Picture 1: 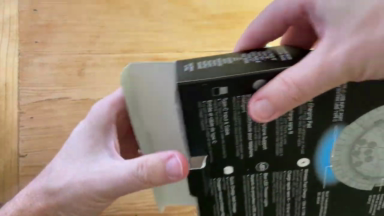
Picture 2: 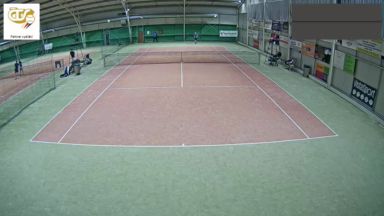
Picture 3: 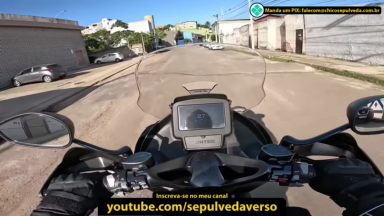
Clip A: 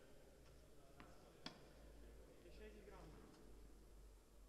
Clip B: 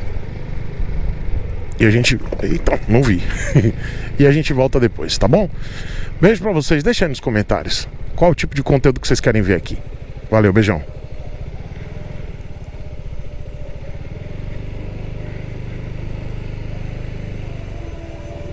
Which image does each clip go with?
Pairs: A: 2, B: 3